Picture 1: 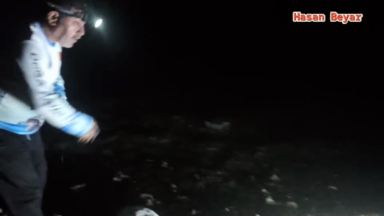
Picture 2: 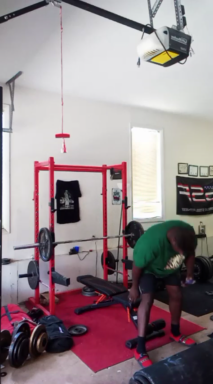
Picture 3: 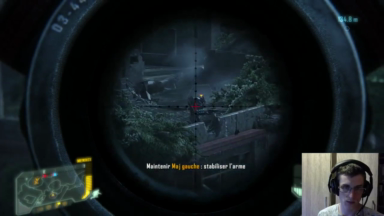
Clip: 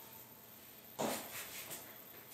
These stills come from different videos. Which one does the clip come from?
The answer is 2